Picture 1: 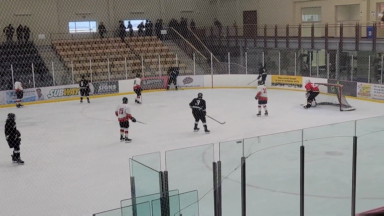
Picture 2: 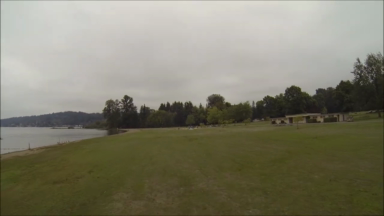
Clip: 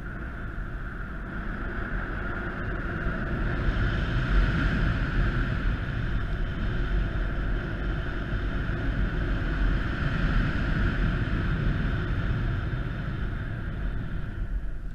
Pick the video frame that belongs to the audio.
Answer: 2